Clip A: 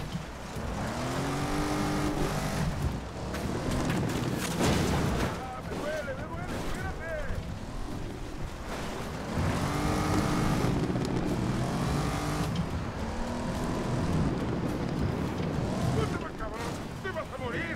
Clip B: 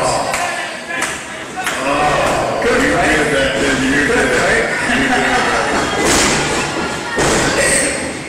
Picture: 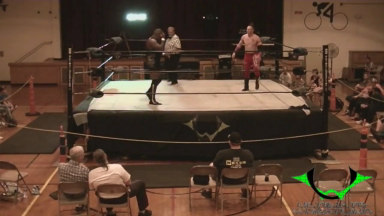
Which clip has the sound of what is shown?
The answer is B